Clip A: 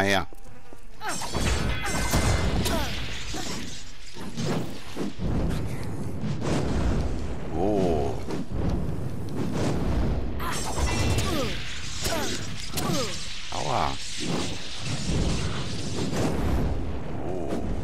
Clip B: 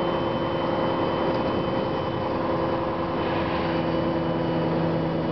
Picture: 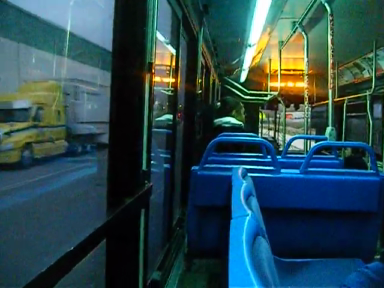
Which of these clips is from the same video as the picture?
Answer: B